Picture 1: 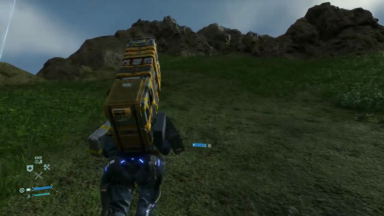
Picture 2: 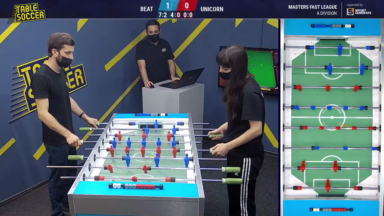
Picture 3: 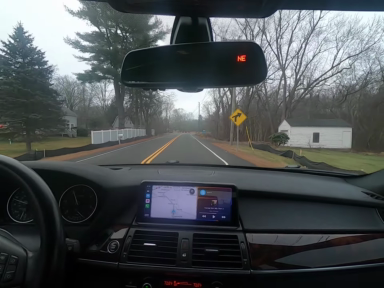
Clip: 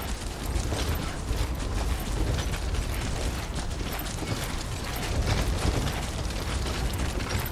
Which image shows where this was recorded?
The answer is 1